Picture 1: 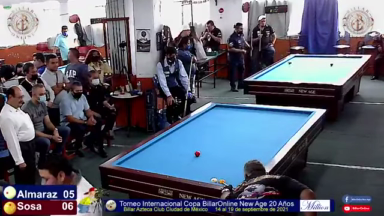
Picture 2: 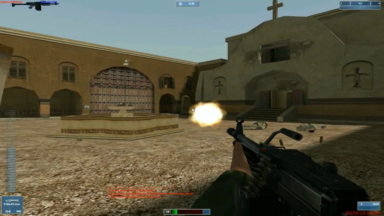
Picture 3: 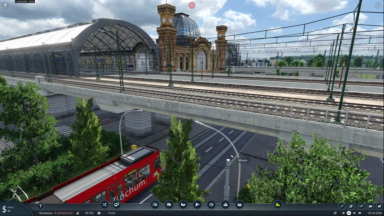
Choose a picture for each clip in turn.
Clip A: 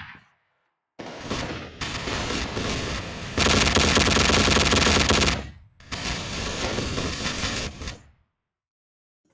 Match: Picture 2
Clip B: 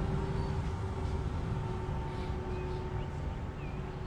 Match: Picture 3